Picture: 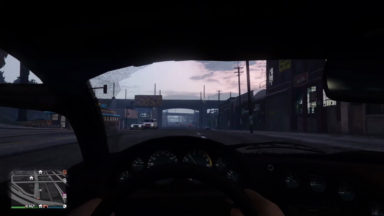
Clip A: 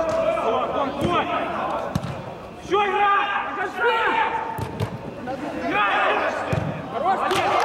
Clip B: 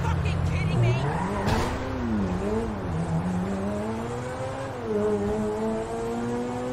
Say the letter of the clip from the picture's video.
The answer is B